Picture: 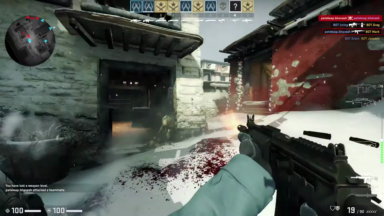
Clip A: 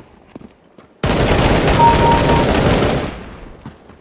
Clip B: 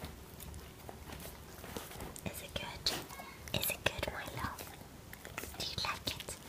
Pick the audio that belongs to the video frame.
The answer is A